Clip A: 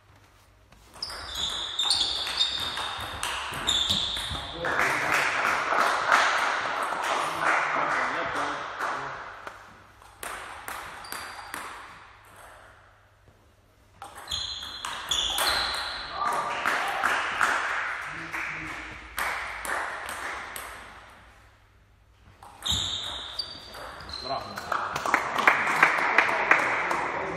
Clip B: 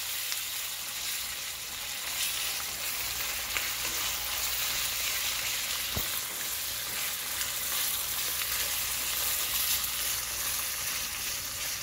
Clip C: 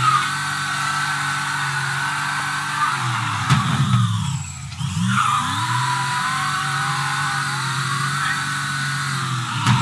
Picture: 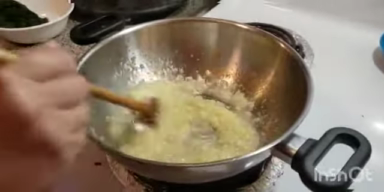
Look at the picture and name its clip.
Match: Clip B